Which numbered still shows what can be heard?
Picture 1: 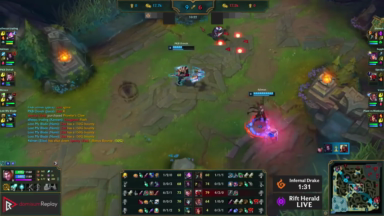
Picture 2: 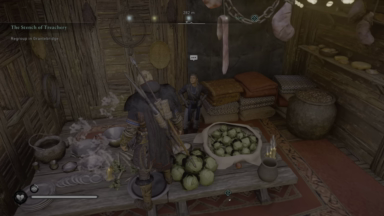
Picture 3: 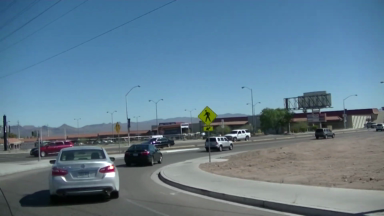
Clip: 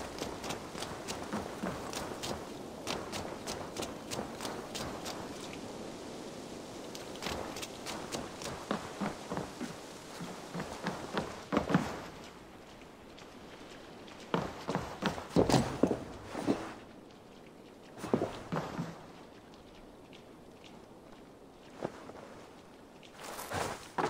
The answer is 2